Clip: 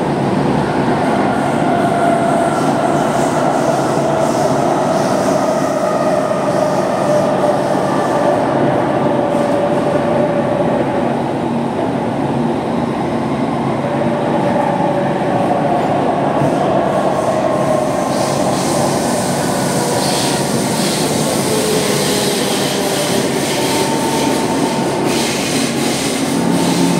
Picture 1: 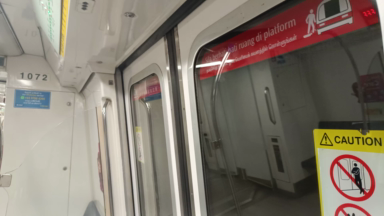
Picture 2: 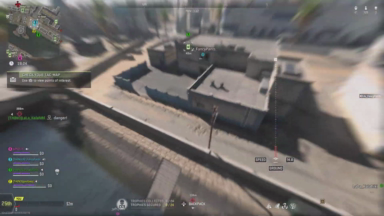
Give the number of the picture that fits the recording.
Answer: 1